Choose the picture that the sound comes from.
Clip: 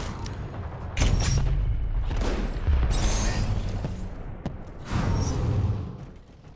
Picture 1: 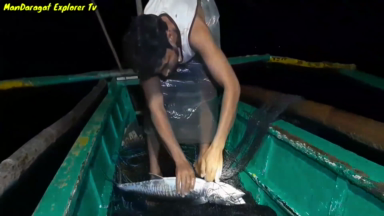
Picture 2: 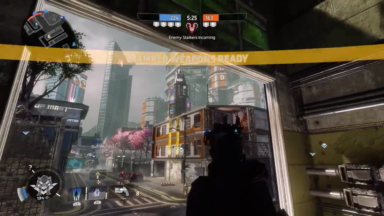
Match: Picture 2